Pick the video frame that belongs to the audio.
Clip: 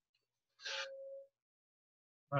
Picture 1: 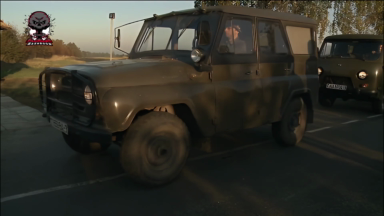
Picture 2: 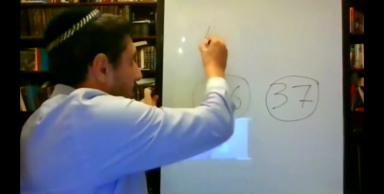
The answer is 2